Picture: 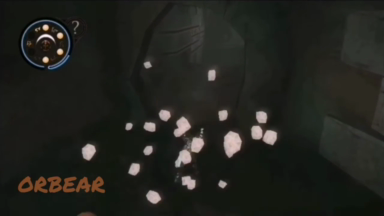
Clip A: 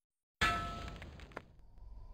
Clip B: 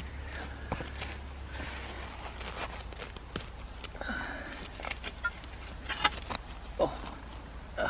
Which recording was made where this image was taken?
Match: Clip A